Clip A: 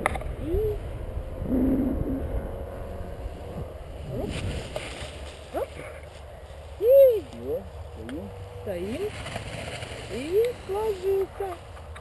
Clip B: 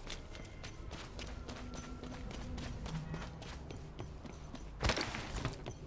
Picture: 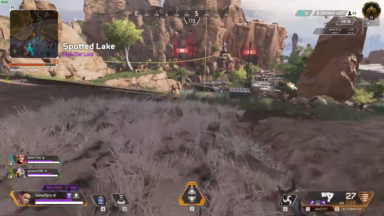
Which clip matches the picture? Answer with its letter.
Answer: B